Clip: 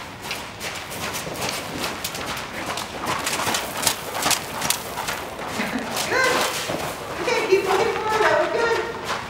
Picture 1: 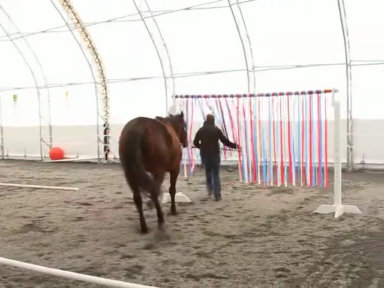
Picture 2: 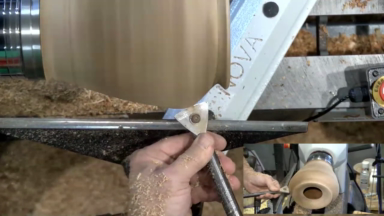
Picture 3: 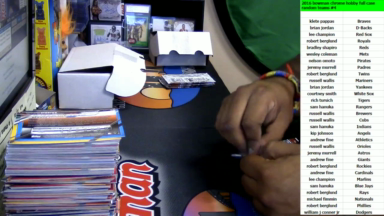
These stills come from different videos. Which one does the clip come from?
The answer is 1